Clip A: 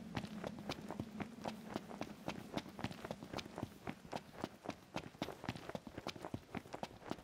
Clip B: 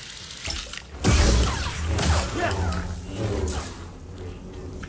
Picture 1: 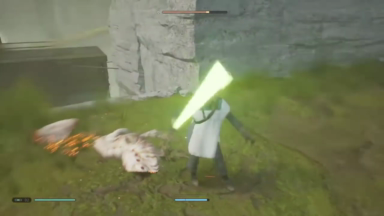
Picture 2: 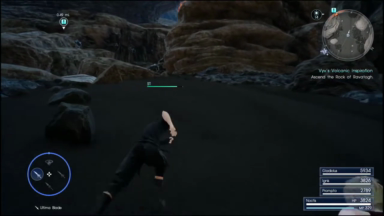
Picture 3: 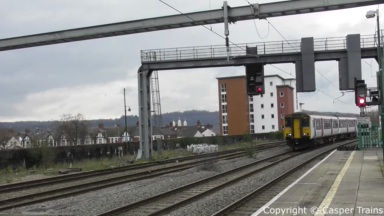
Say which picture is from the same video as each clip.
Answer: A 2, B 1